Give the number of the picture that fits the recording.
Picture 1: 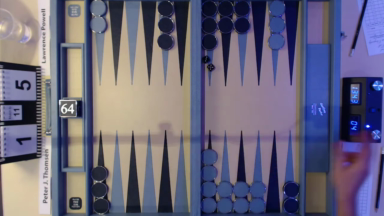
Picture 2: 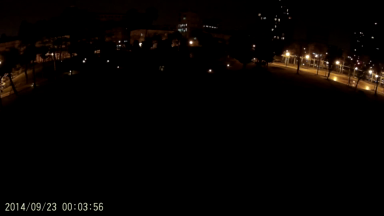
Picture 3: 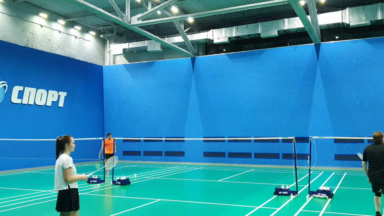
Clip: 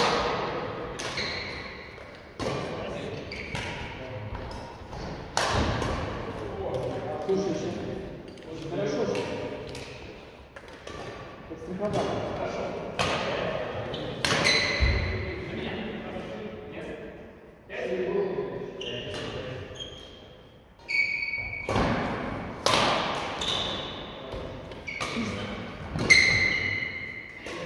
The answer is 3